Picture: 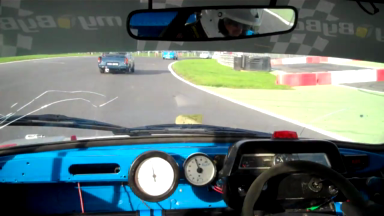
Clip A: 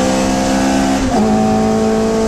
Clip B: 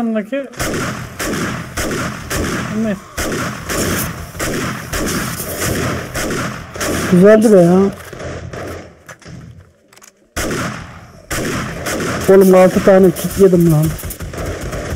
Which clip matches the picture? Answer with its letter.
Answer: A